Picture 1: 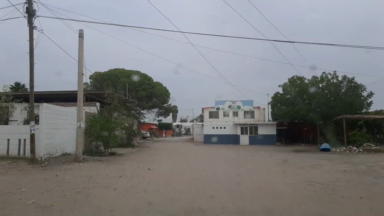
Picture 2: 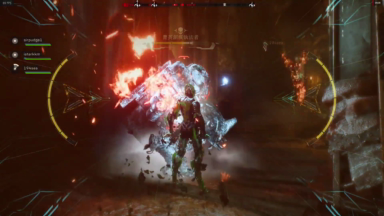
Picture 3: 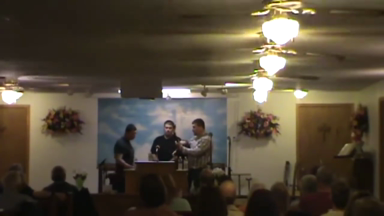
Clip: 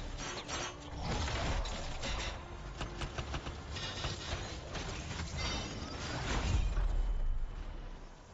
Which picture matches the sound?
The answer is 2